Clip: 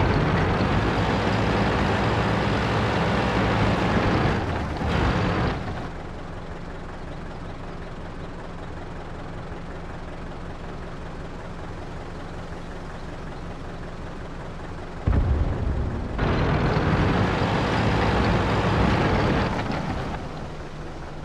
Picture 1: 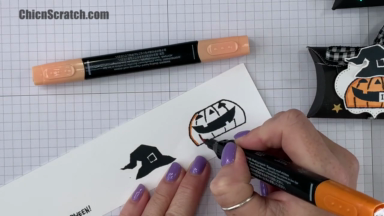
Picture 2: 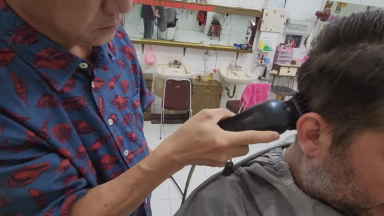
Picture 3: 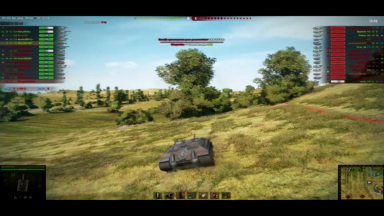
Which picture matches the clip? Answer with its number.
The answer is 3